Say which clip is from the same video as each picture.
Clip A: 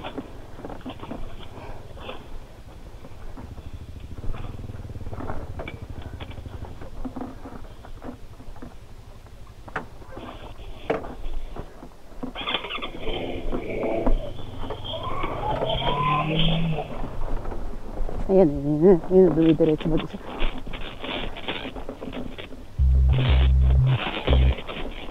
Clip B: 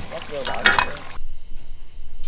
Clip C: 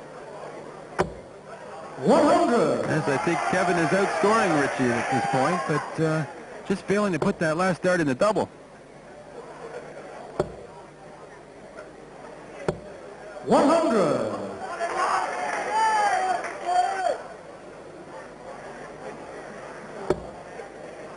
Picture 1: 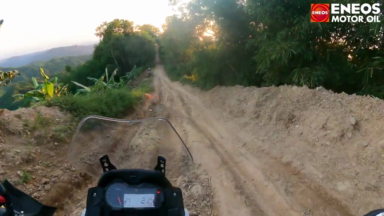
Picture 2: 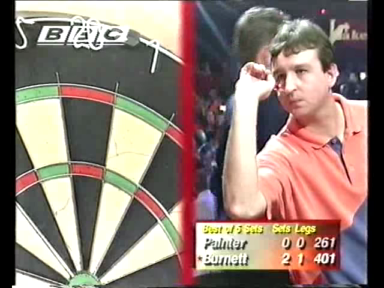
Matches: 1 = A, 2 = C